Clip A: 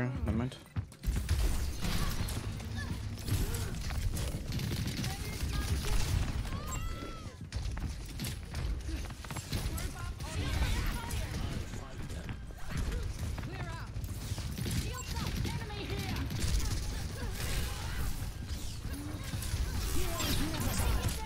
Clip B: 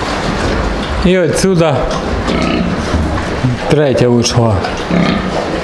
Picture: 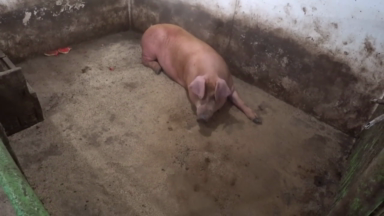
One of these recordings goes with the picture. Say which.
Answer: B